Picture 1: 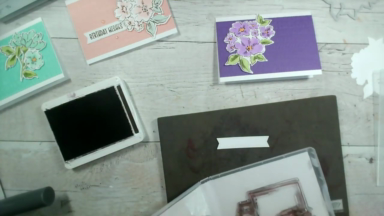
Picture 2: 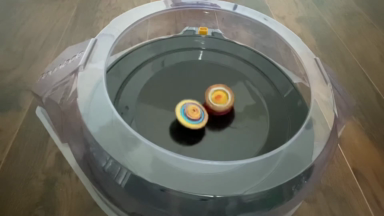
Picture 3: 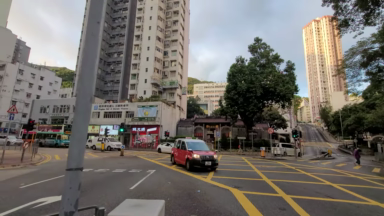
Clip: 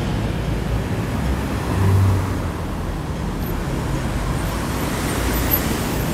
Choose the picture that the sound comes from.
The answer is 3